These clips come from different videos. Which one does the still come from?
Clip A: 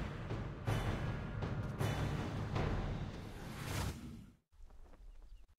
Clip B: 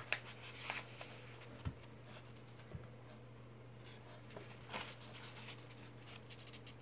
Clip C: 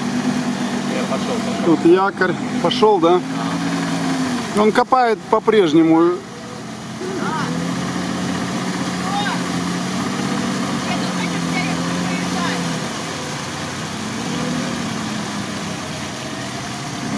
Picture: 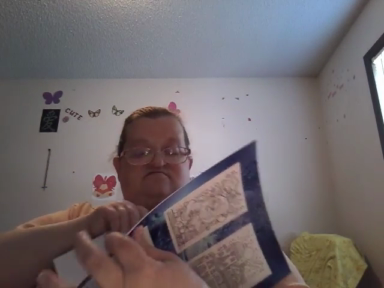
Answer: B